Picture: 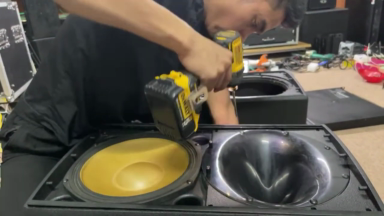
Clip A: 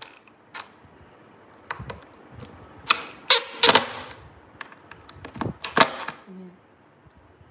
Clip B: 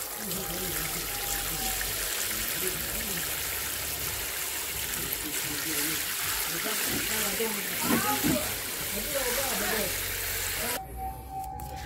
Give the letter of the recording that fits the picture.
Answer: A